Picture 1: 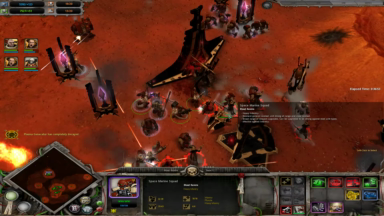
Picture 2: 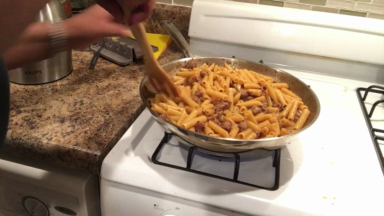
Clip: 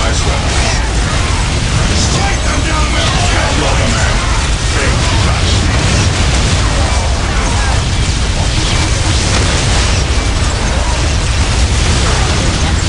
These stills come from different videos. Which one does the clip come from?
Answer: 1